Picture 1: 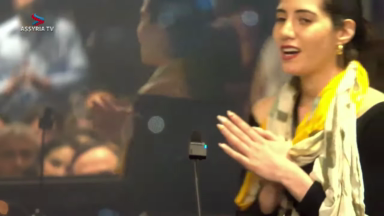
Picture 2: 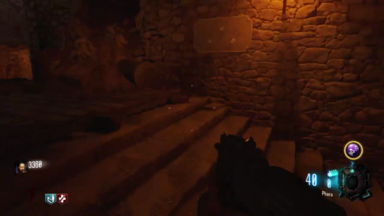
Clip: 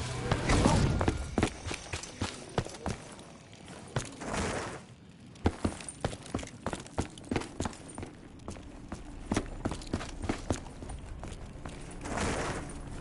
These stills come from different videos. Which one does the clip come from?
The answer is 2